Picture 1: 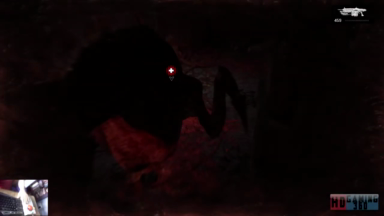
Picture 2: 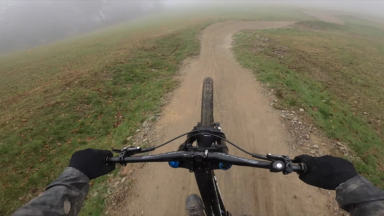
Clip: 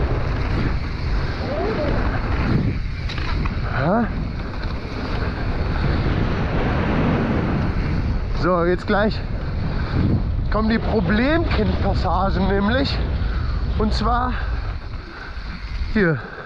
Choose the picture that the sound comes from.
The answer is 2